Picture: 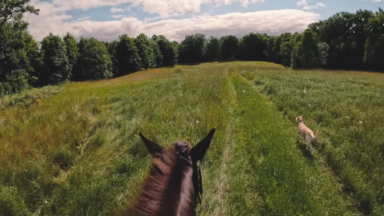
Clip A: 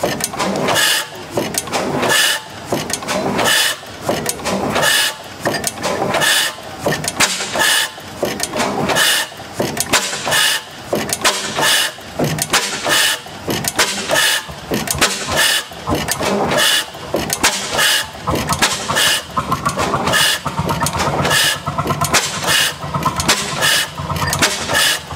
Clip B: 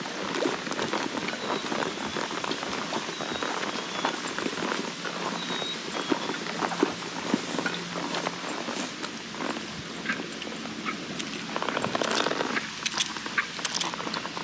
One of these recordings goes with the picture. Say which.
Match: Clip B